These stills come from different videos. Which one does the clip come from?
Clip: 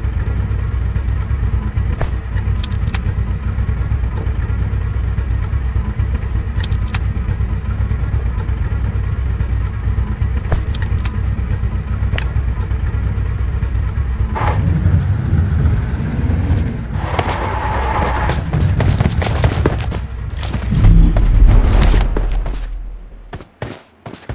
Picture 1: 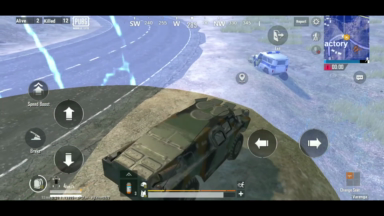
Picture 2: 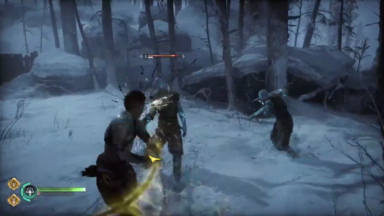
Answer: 1